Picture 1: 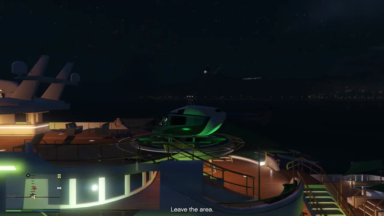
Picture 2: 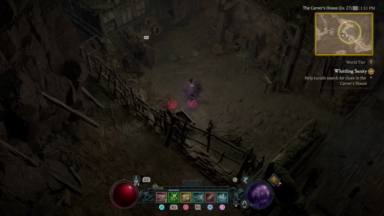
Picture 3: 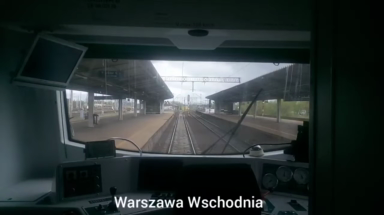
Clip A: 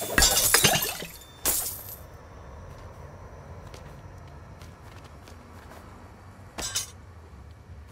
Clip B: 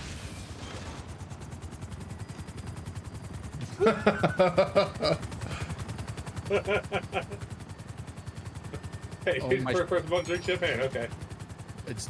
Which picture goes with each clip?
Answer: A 2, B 1